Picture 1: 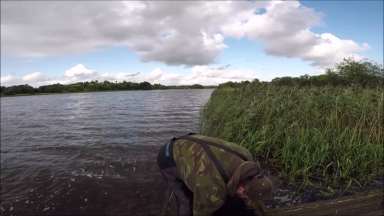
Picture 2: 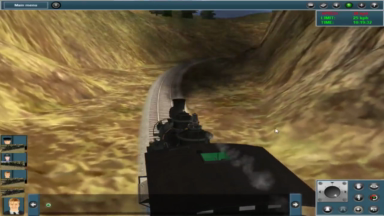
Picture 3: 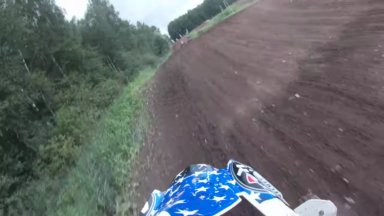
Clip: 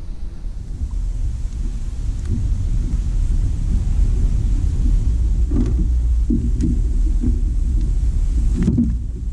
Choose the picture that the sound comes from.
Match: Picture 1